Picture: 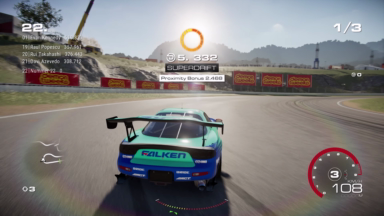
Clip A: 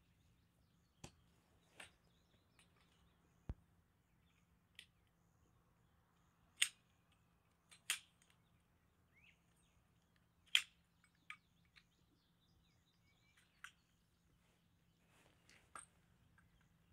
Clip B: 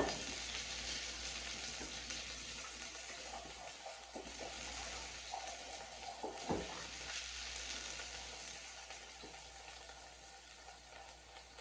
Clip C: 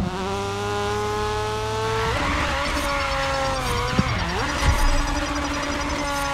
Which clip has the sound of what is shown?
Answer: C